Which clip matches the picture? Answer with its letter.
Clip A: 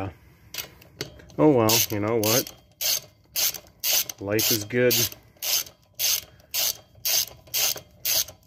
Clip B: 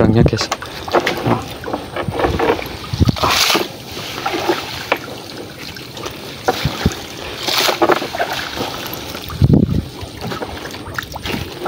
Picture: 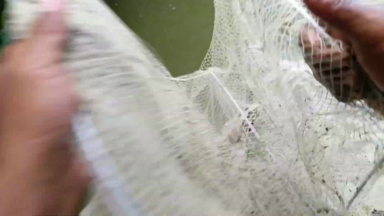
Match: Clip B